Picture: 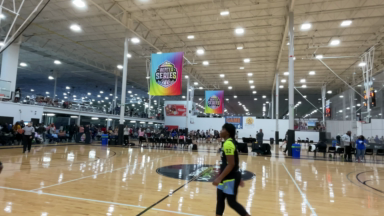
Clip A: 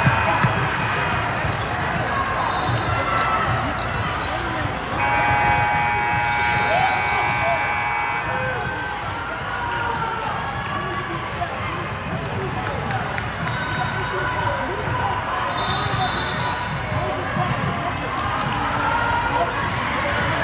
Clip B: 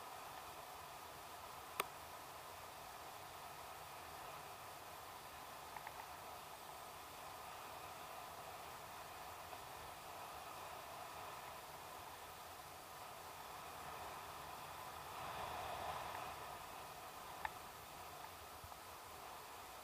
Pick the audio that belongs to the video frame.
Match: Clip A